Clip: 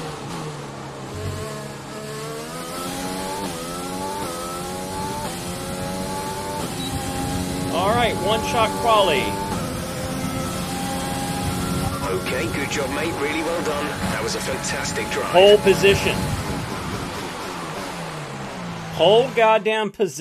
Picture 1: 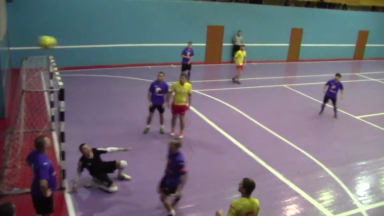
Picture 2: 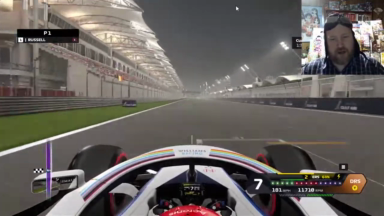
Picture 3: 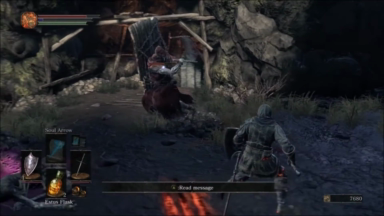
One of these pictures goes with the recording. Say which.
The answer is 2